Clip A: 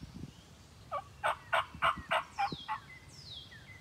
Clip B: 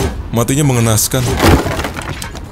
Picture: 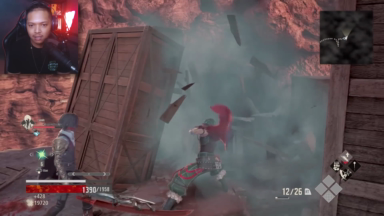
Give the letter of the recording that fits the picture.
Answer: B